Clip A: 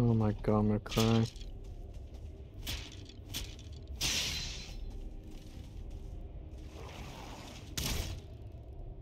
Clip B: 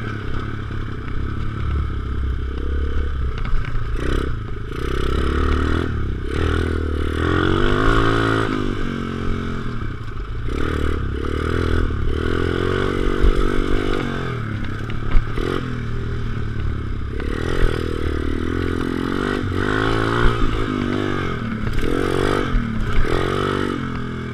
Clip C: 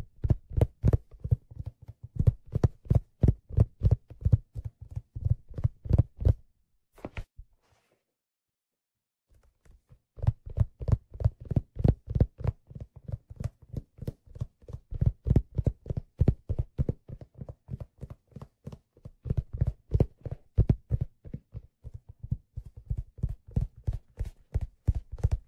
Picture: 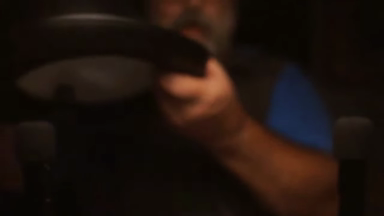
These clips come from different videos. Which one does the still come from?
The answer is C